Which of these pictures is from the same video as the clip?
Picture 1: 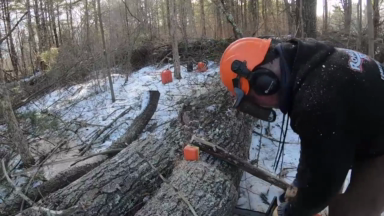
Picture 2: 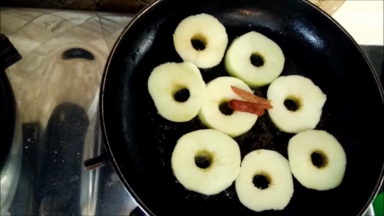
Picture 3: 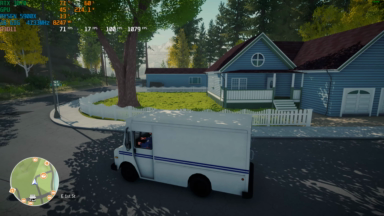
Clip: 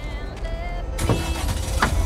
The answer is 3